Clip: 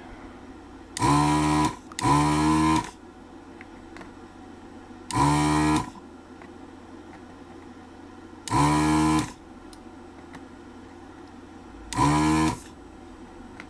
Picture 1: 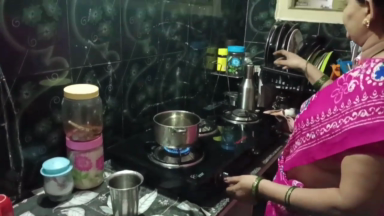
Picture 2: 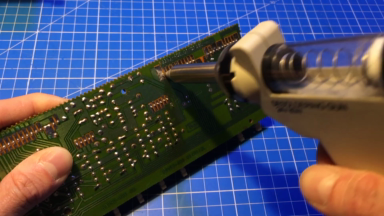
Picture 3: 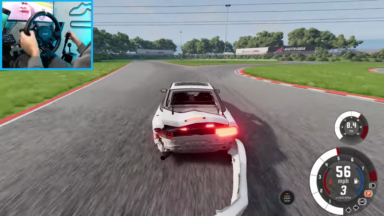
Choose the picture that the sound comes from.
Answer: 2